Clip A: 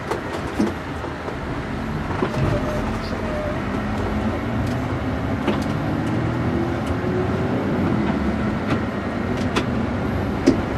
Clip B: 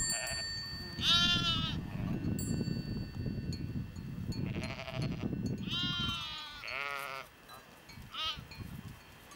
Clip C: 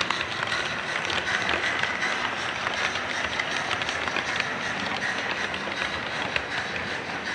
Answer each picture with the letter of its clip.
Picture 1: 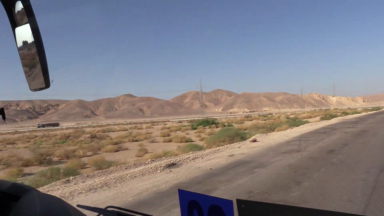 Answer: A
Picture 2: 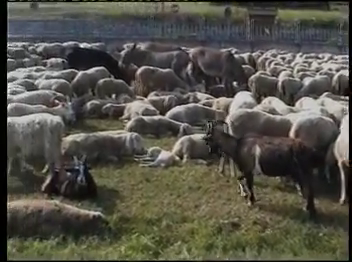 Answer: B